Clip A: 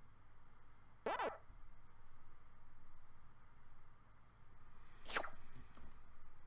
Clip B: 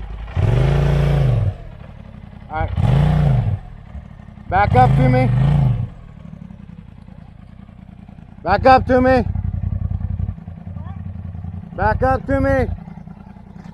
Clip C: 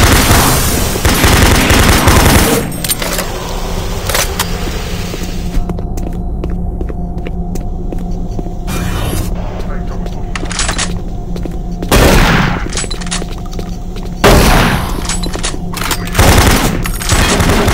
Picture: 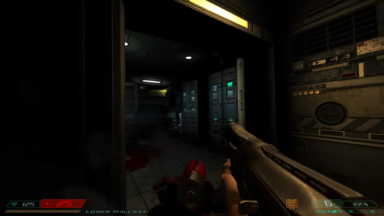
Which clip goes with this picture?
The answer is C